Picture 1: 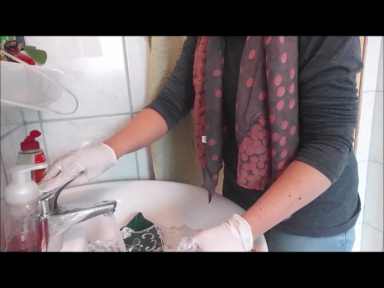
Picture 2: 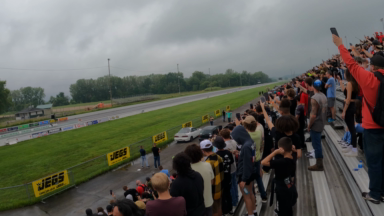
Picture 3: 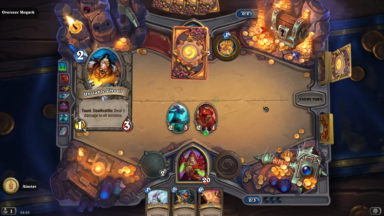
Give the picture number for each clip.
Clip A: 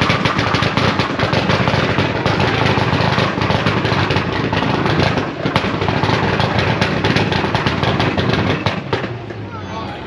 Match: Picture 2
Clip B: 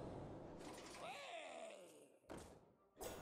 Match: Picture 3